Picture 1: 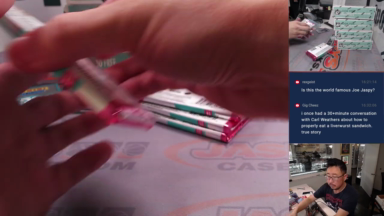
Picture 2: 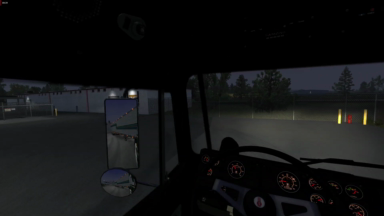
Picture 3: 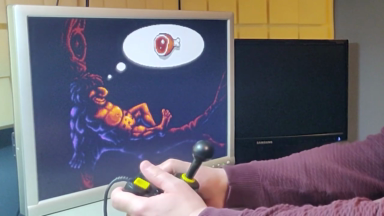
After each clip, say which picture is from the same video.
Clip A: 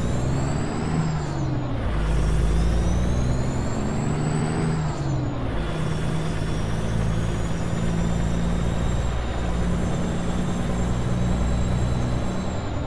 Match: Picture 2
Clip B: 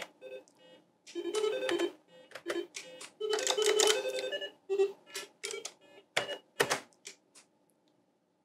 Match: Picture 3